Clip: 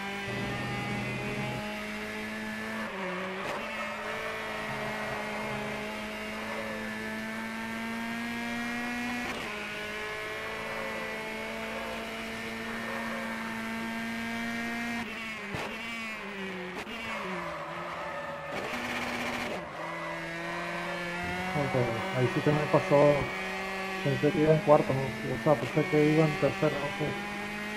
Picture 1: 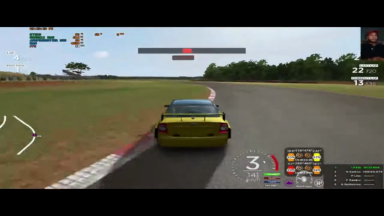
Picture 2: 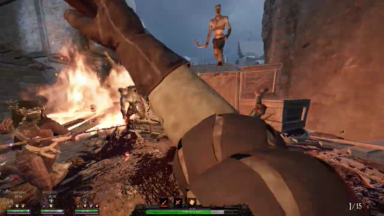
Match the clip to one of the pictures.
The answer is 1